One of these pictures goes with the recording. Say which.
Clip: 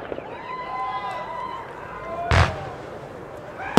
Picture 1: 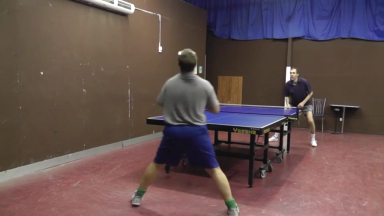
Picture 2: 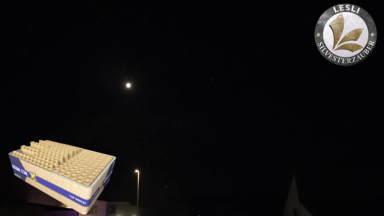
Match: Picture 2